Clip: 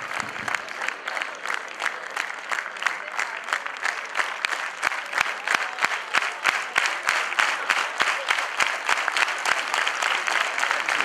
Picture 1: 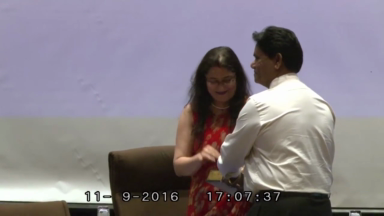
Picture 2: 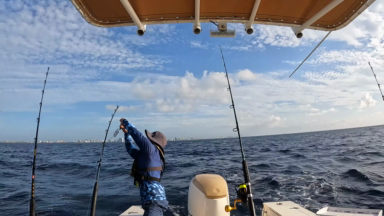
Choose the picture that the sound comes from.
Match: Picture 1